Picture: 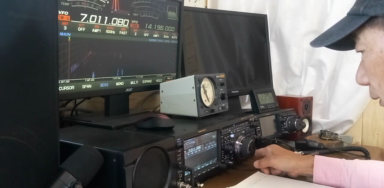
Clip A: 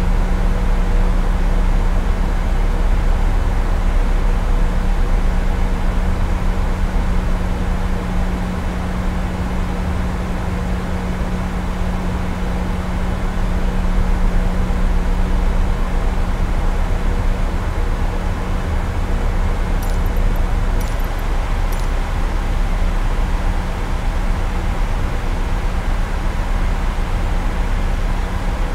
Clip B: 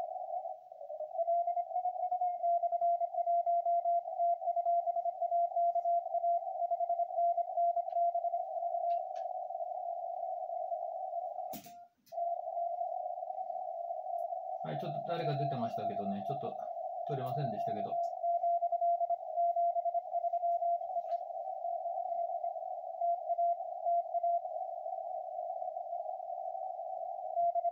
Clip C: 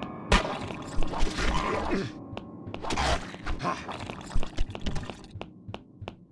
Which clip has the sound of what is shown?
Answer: B